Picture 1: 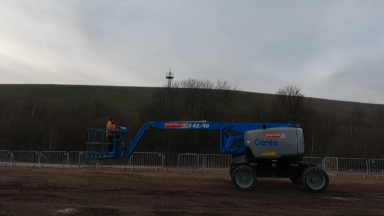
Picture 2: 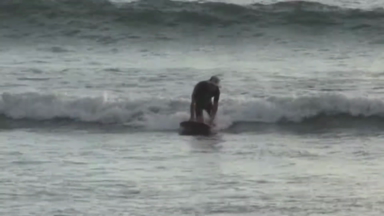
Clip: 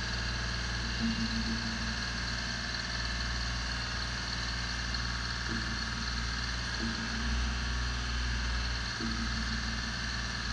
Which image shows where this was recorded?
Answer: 1